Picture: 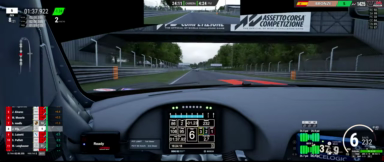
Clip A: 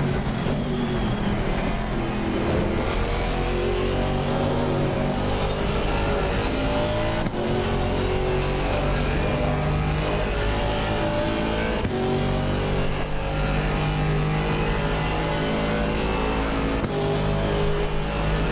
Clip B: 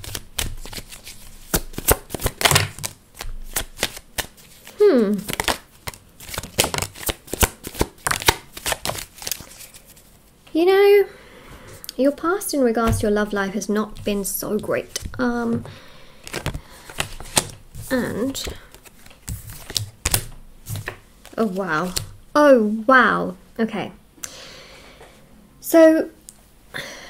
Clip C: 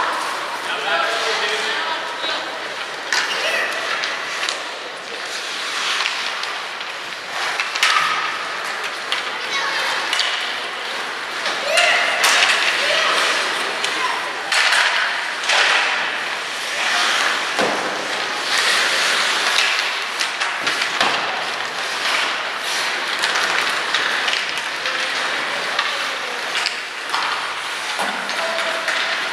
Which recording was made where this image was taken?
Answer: A